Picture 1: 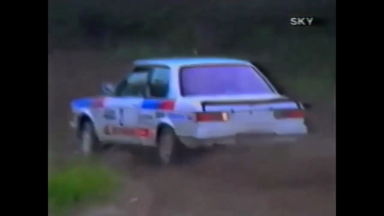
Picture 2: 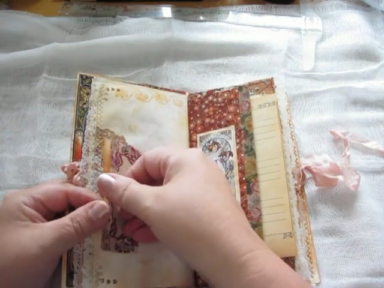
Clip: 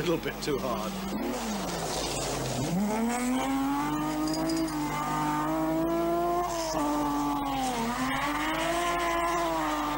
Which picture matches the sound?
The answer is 1